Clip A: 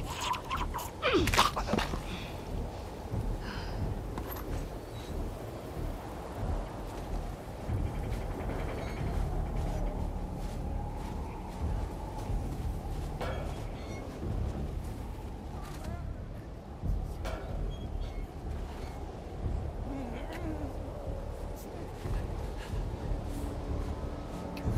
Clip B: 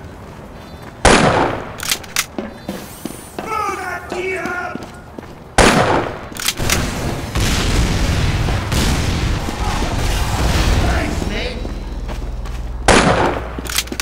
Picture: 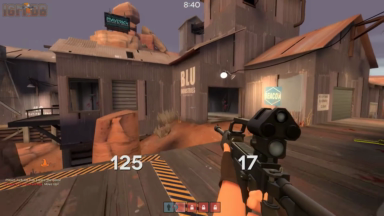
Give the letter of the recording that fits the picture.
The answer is B